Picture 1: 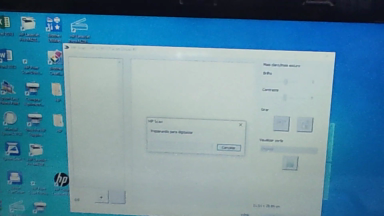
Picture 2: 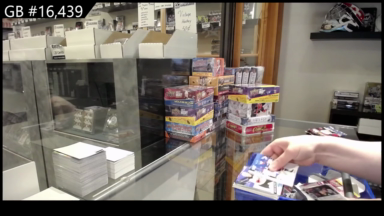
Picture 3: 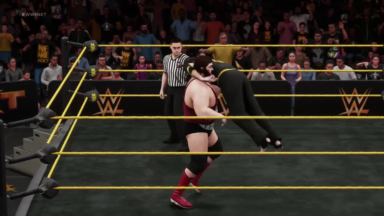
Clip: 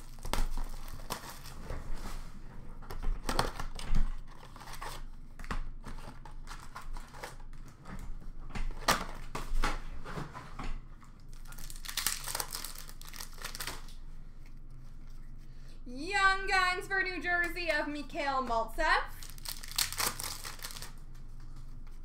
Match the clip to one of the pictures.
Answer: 2